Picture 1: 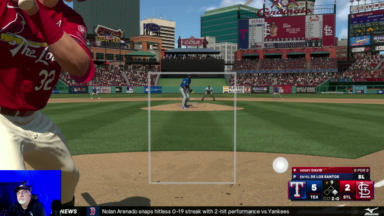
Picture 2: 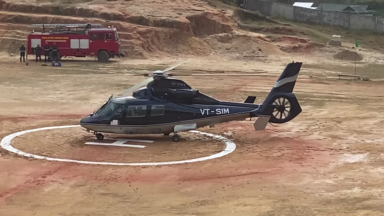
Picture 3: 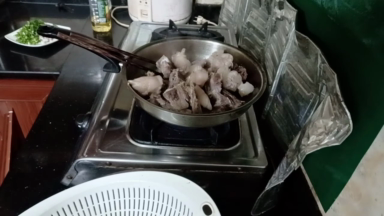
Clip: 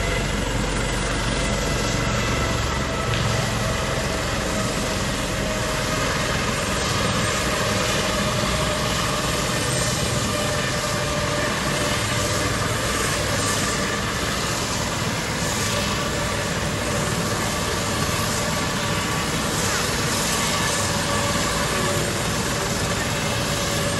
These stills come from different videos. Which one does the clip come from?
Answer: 2